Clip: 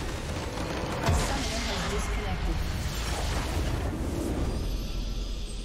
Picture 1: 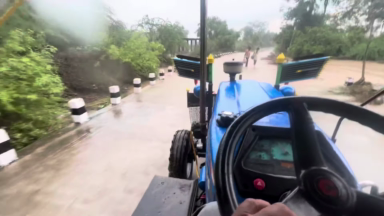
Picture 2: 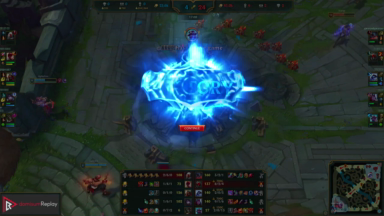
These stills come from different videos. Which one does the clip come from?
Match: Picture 2